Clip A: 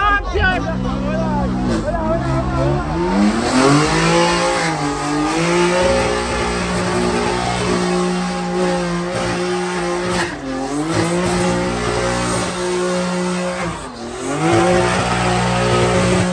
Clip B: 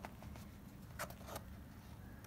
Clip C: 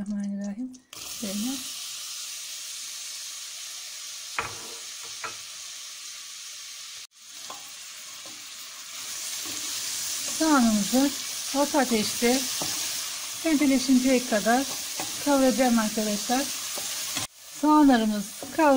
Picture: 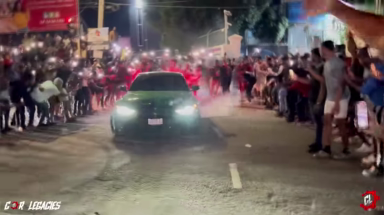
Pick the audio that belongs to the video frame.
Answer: A